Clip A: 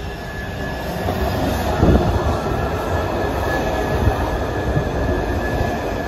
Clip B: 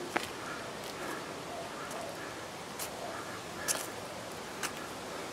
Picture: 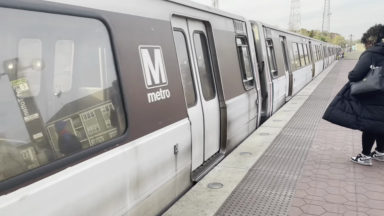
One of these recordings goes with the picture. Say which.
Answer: A